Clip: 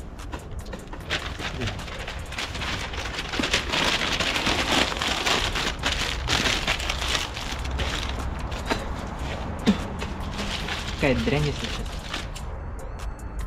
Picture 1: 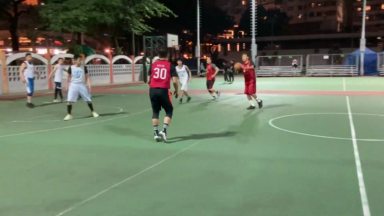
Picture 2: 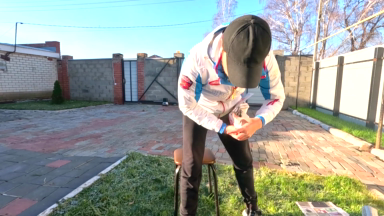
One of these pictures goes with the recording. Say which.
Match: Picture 2